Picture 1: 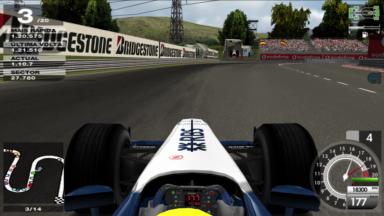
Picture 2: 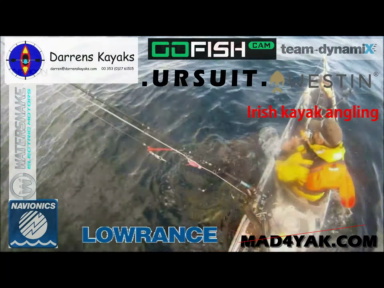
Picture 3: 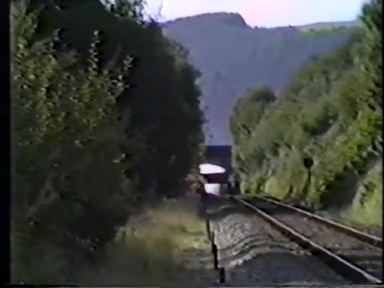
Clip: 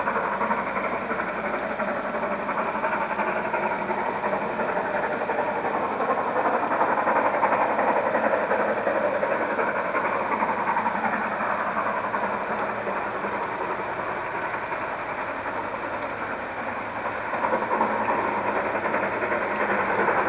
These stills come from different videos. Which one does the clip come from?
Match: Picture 3